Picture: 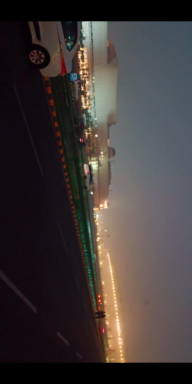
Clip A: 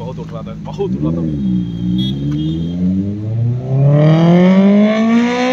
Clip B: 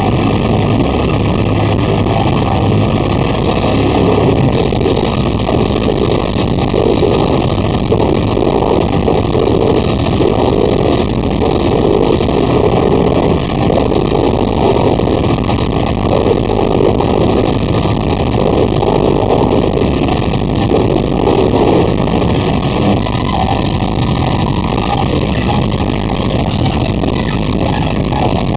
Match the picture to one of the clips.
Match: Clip A